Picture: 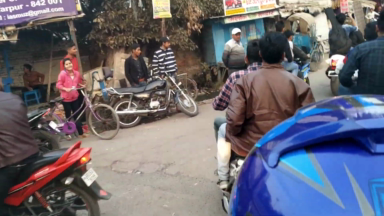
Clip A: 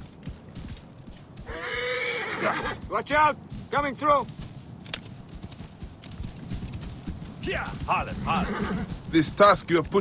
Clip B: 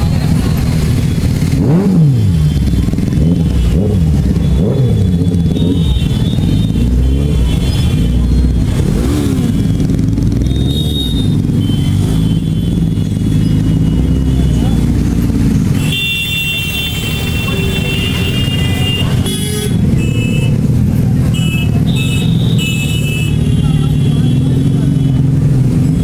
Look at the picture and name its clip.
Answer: B